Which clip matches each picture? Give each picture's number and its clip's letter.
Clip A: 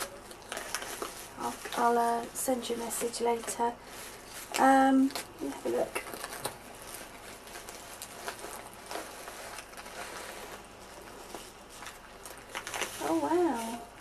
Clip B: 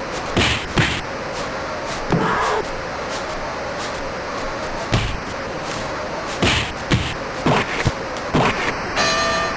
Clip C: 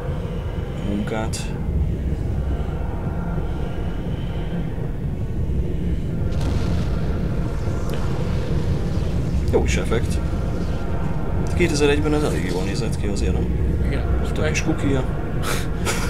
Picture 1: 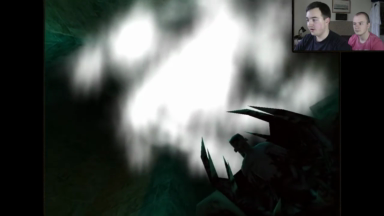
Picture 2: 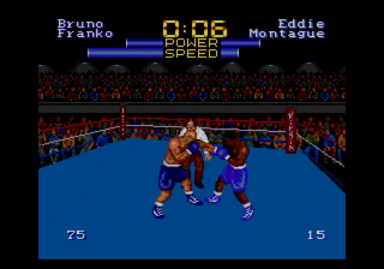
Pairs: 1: C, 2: B